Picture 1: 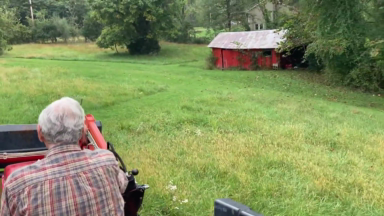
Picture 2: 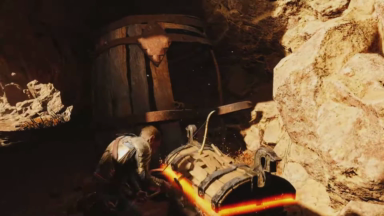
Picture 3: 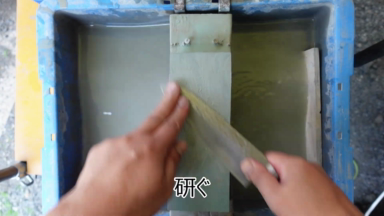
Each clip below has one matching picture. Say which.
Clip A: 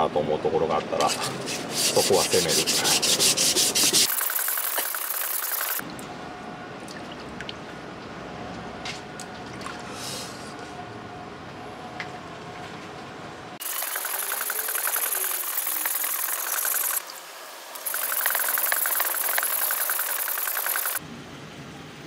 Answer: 3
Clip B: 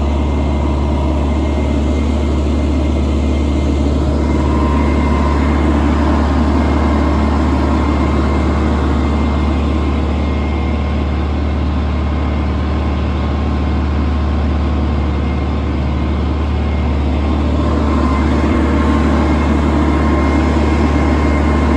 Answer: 1